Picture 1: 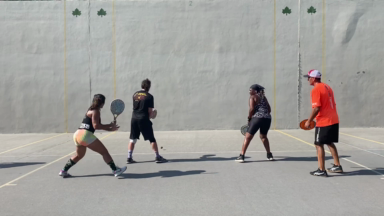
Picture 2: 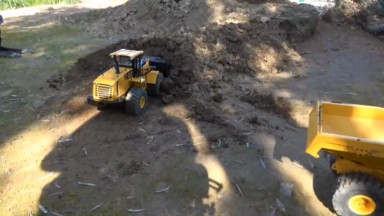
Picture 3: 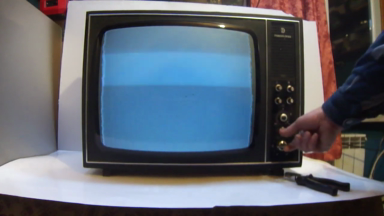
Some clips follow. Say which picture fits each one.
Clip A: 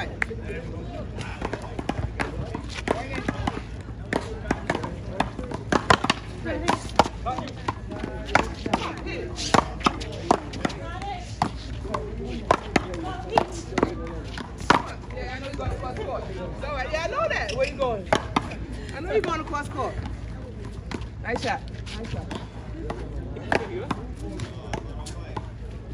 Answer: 1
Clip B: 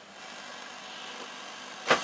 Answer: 3